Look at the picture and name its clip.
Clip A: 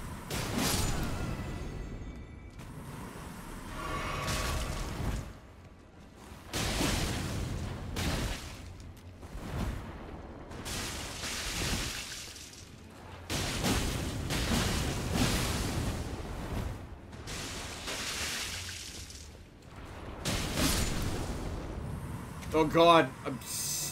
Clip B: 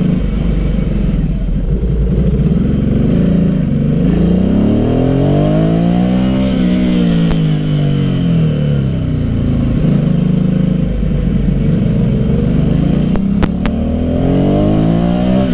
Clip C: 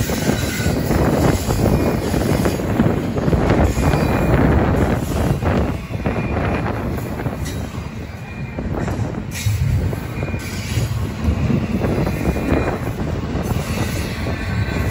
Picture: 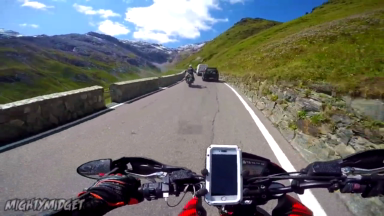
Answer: B